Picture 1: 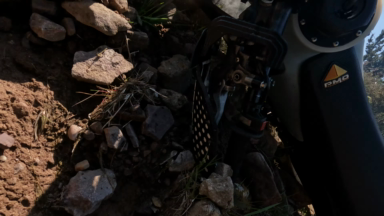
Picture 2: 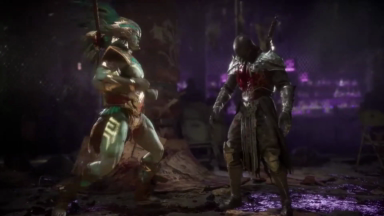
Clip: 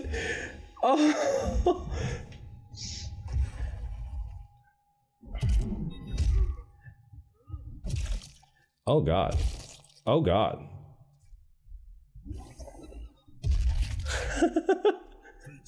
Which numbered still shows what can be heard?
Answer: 2